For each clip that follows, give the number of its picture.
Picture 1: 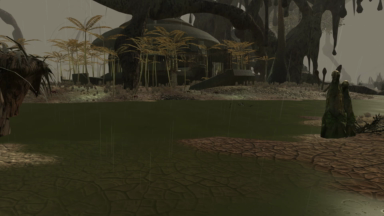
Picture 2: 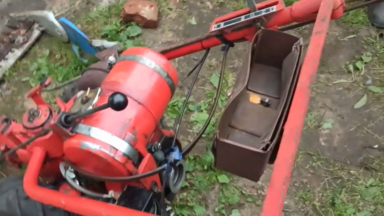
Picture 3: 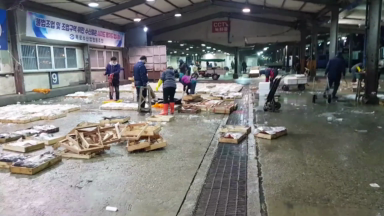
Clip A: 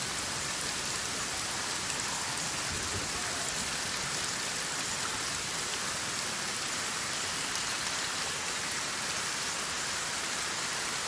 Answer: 1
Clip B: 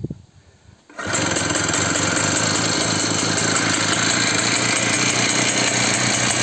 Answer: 2